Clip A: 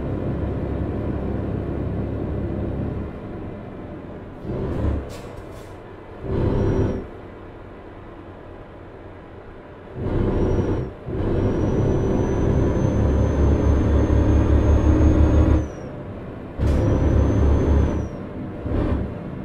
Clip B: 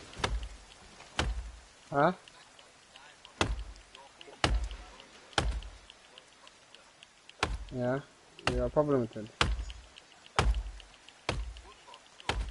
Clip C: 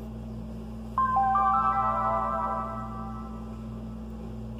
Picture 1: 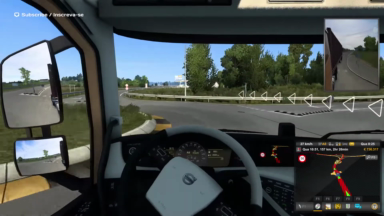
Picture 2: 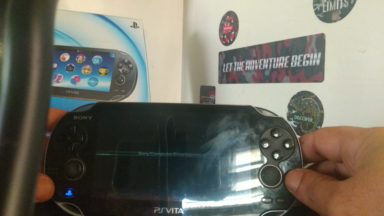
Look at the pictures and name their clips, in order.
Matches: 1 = A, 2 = C